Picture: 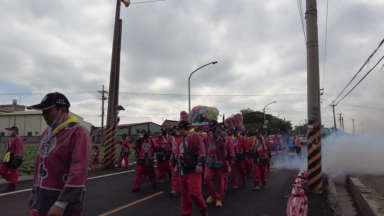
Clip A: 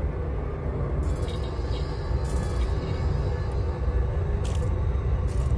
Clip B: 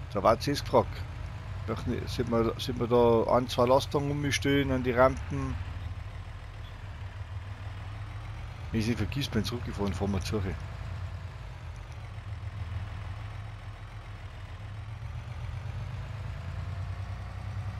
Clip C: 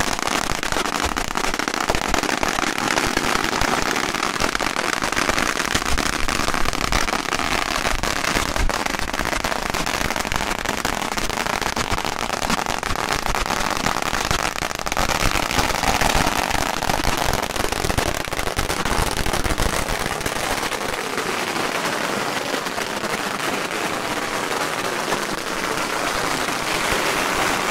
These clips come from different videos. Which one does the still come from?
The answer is C